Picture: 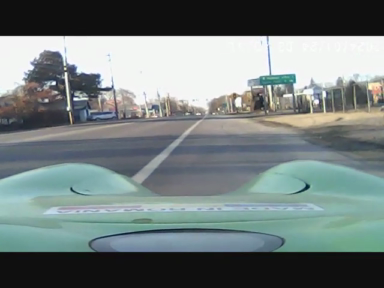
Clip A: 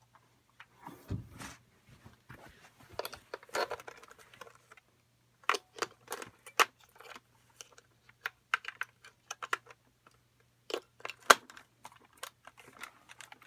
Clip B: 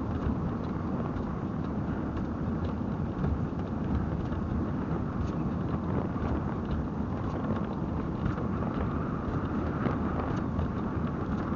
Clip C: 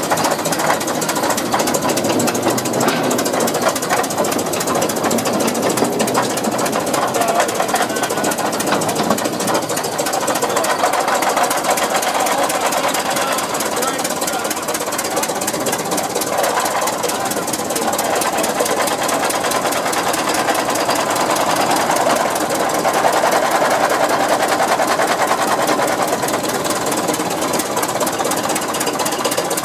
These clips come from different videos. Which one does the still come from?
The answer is B